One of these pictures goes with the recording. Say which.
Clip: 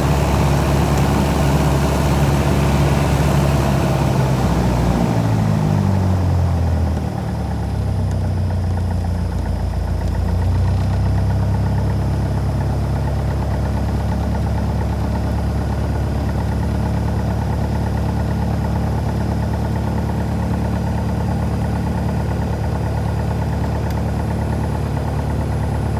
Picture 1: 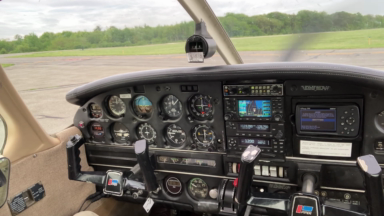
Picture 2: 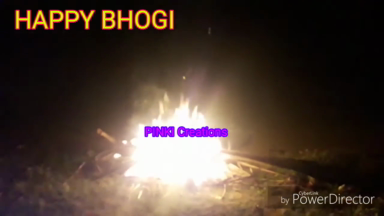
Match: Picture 1